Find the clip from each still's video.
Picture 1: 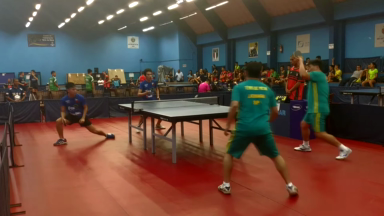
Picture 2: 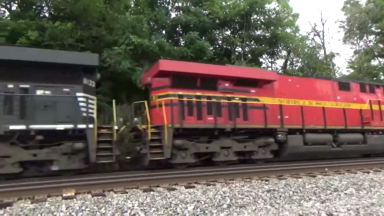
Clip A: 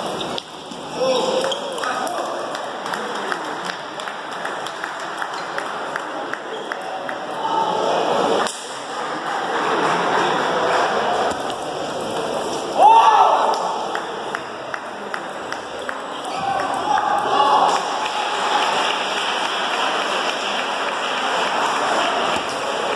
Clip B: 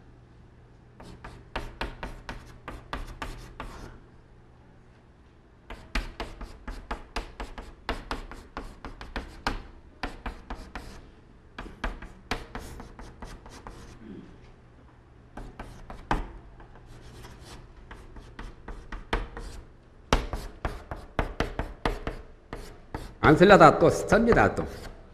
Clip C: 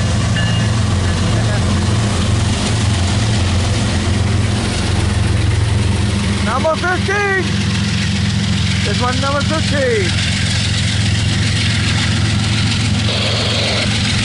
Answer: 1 A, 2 C